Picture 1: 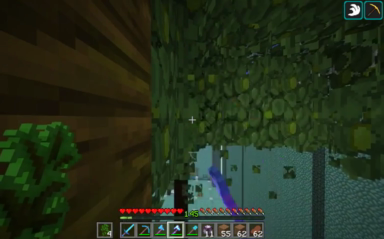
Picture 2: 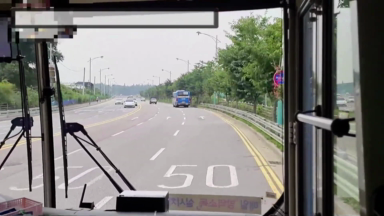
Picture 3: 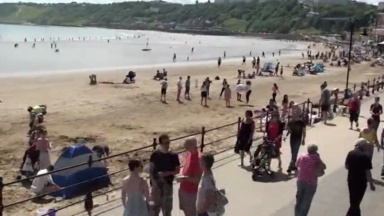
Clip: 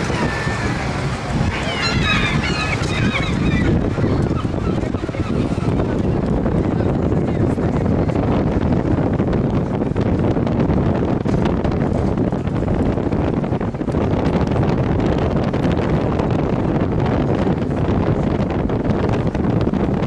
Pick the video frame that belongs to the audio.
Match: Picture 3